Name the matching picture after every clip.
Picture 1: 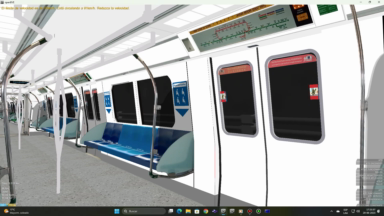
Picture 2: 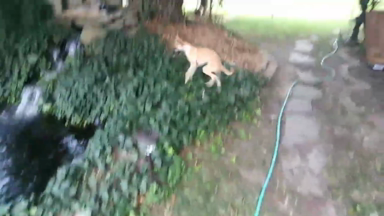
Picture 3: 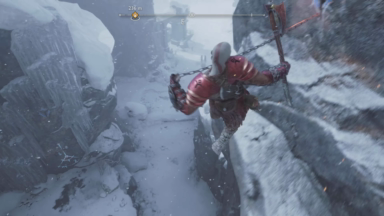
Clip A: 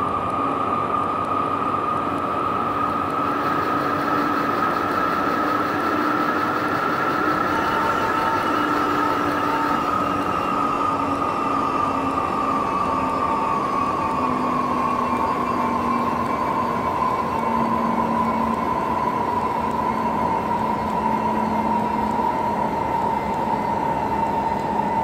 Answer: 1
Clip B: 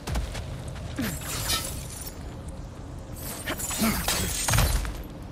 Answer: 3